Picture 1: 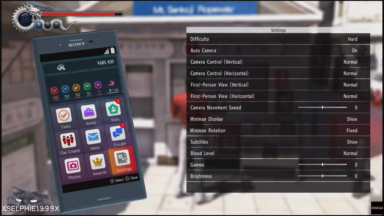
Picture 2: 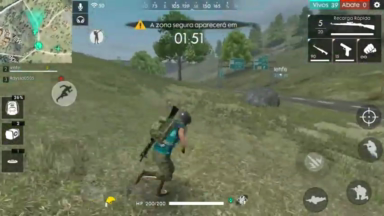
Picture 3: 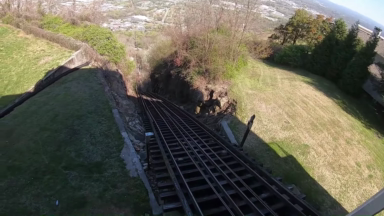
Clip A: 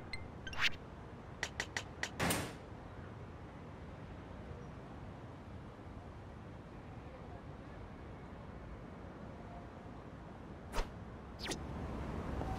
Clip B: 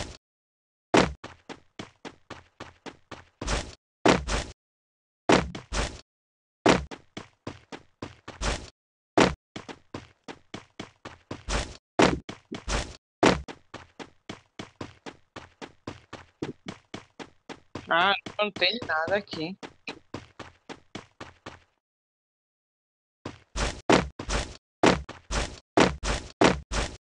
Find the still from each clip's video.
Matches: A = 1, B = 2